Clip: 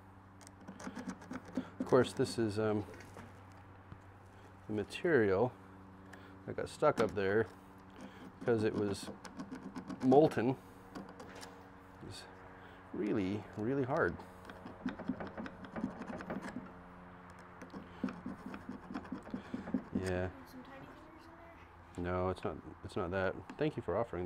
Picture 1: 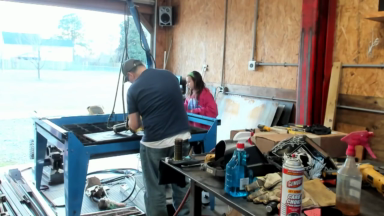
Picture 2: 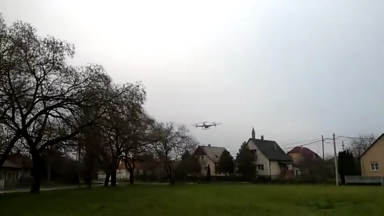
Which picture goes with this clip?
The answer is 1